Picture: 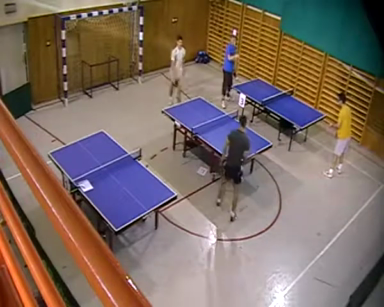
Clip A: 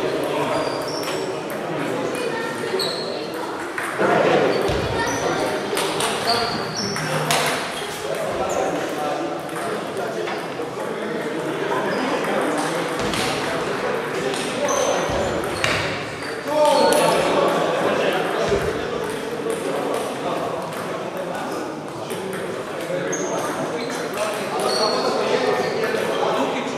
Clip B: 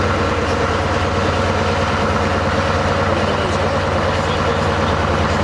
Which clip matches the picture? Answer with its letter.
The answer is A